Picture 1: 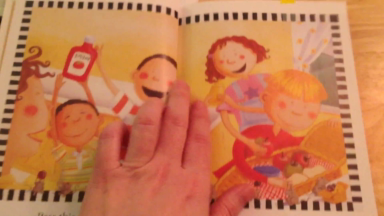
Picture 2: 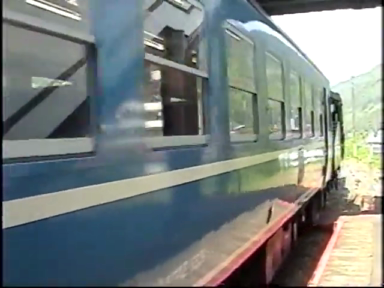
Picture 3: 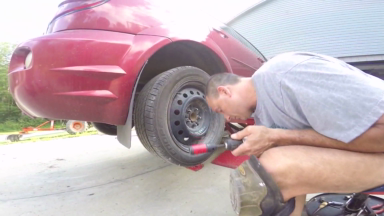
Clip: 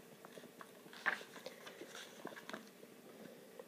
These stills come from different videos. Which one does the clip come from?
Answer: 1